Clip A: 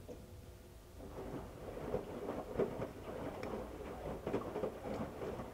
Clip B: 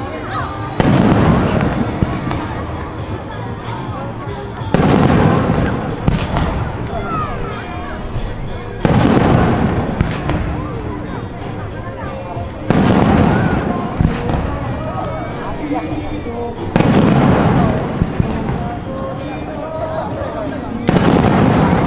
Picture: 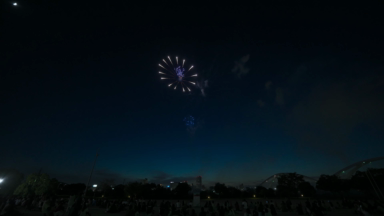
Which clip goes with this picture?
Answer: B